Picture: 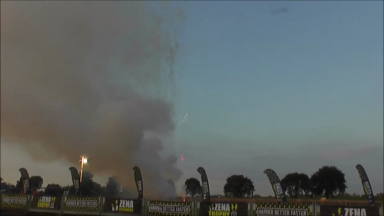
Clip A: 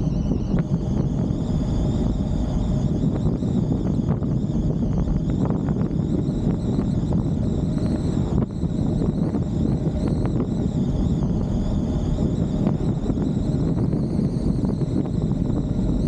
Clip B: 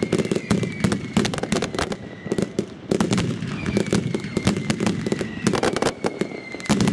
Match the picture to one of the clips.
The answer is B